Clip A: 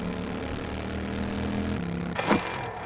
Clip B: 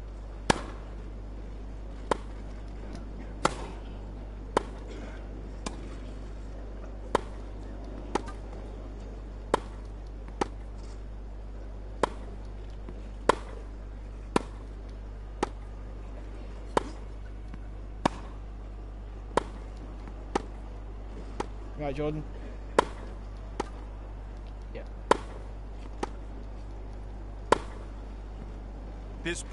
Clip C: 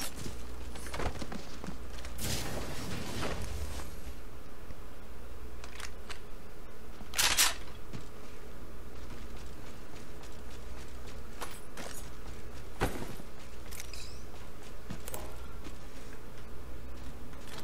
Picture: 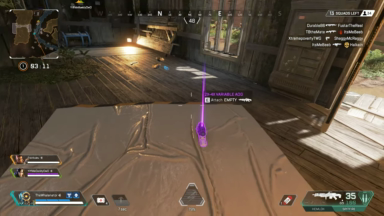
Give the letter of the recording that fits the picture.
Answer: C